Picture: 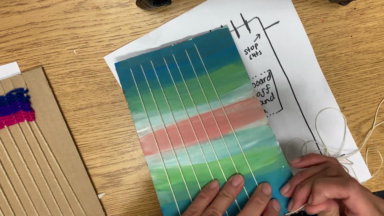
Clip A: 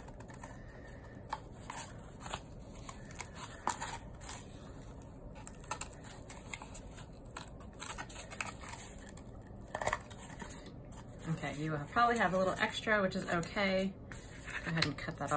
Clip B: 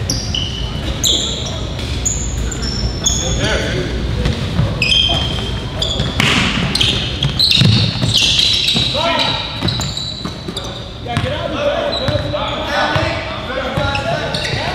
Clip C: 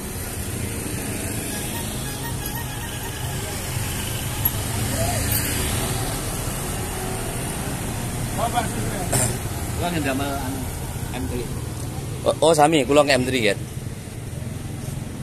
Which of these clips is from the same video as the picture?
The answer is A